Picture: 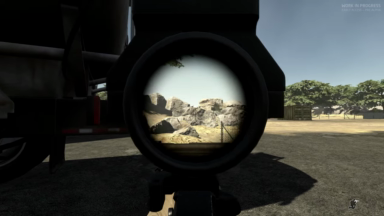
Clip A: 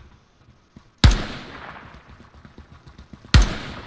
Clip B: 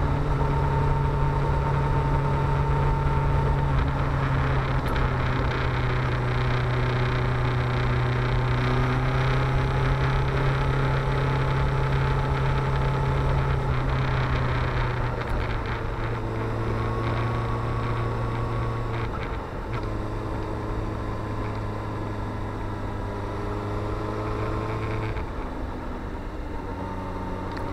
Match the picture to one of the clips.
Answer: A